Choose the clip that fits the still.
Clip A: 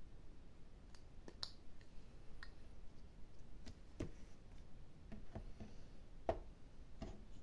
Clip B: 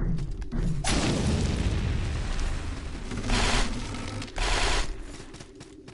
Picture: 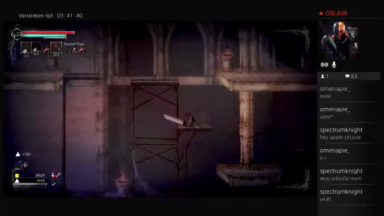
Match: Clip B